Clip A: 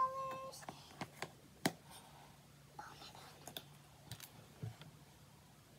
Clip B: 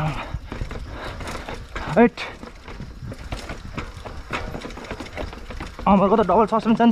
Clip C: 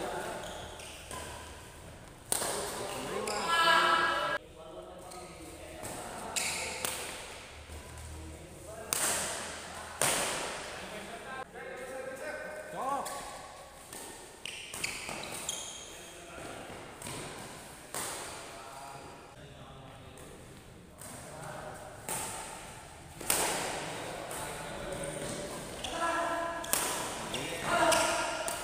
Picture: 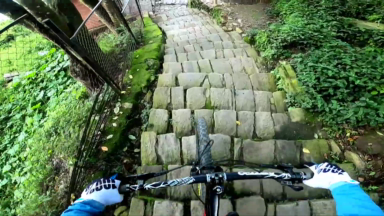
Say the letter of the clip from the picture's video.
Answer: B